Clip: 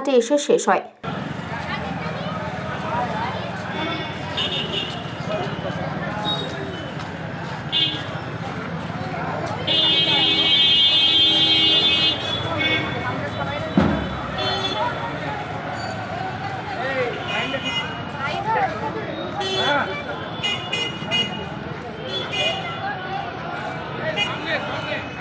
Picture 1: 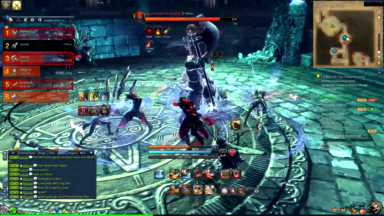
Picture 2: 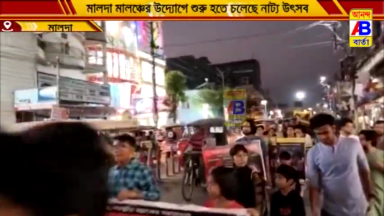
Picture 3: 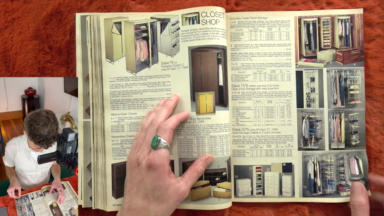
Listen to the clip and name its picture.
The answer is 2